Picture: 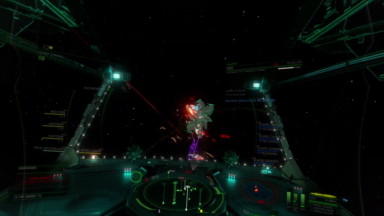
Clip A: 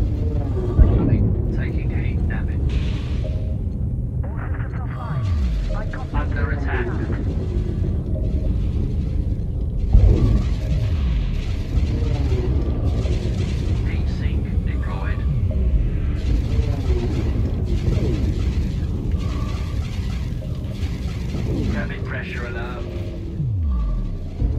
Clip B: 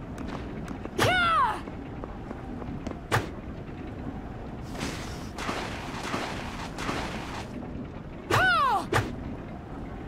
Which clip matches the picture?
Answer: A